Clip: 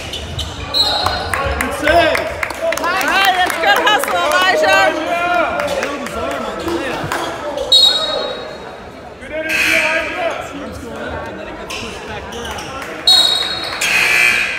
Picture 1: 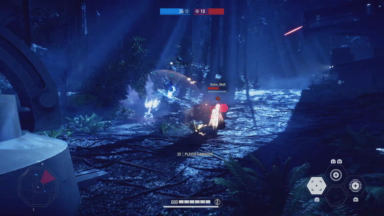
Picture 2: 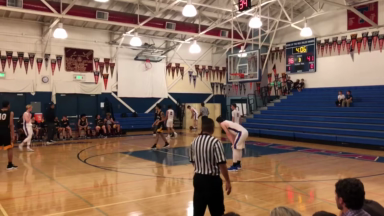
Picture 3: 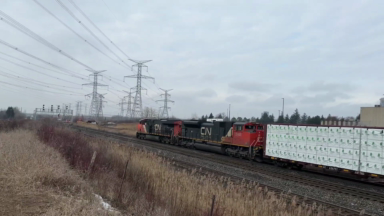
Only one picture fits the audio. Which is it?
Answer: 2